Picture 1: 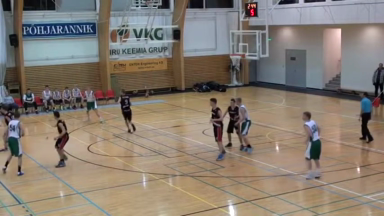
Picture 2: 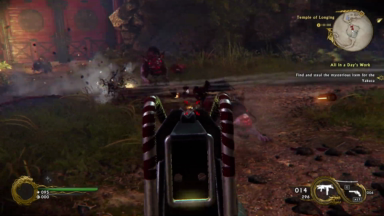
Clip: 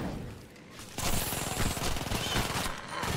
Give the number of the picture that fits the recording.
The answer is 2